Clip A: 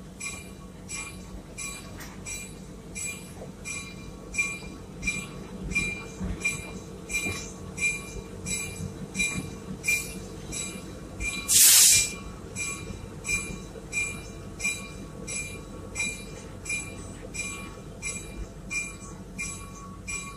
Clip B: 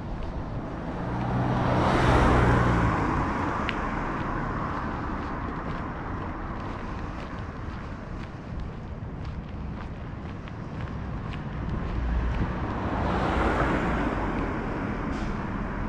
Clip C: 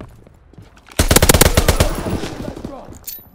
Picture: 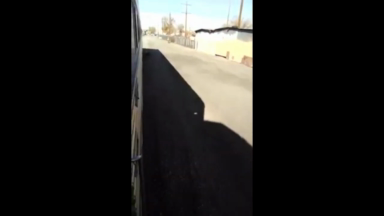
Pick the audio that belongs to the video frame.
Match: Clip A